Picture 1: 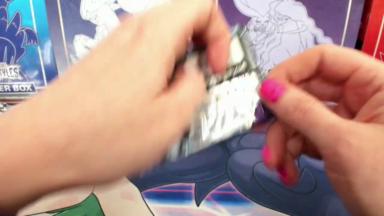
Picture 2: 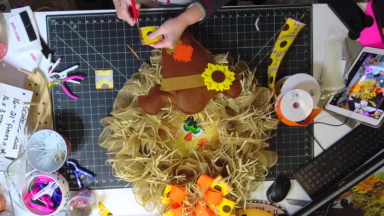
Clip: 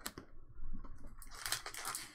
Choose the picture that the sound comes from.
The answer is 1